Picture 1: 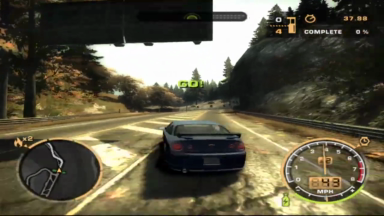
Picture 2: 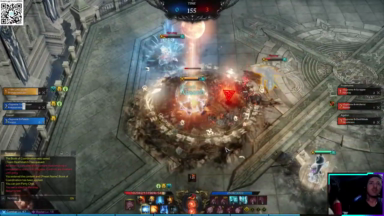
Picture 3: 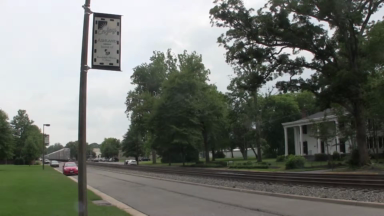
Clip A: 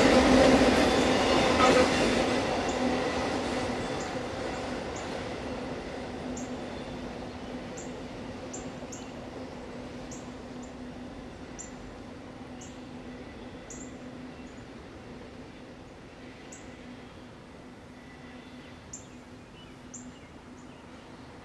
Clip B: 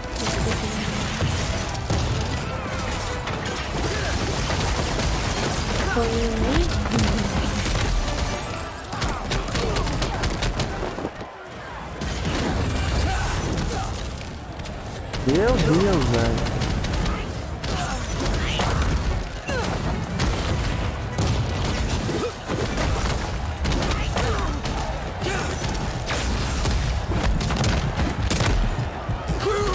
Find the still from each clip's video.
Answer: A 3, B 2